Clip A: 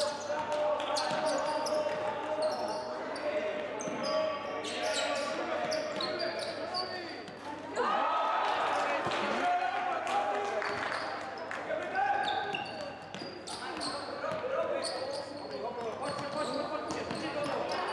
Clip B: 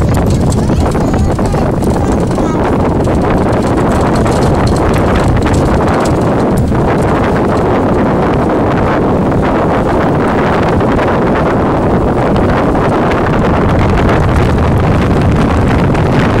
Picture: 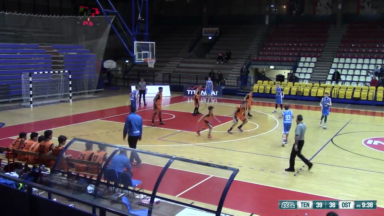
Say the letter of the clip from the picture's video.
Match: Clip A